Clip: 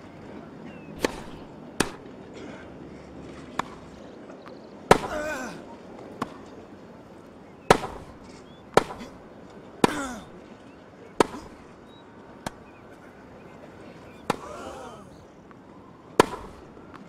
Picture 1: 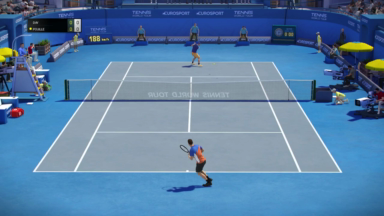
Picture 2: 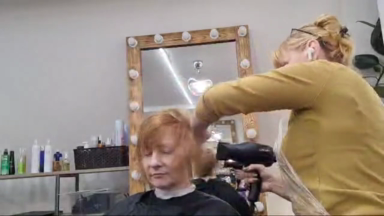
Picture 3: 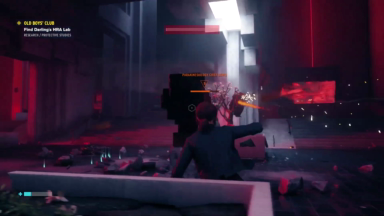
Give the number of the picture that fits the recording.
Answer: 1